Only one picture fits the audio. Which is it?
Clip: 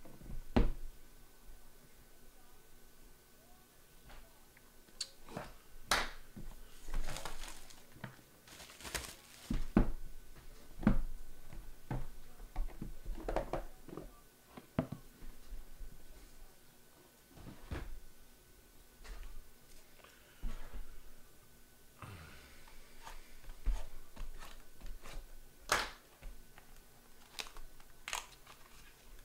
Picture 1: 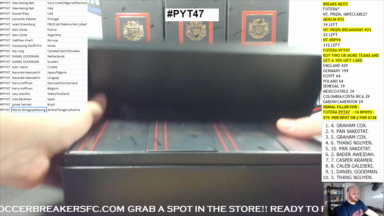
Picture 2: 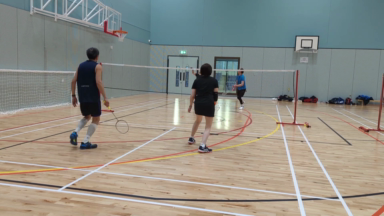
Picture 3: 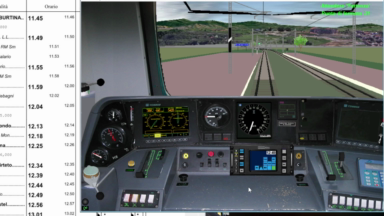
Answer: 1